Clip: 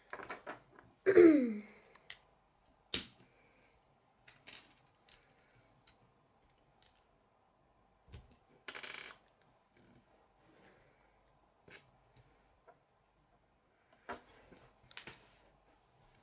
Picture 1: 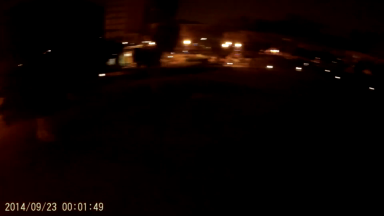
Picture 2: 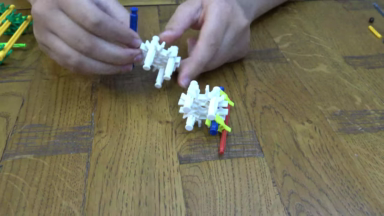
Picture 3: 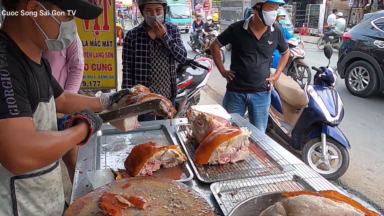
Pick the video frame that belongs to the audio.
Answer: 2